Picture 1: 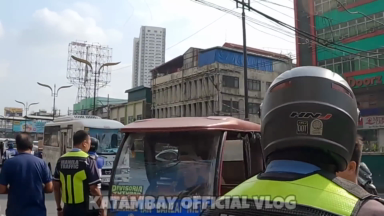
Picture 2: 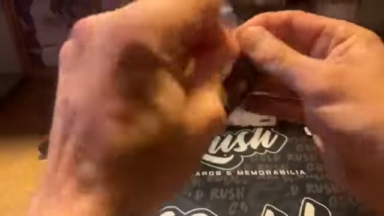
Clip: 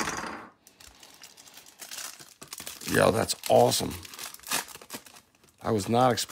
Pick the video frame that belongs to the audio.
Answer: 2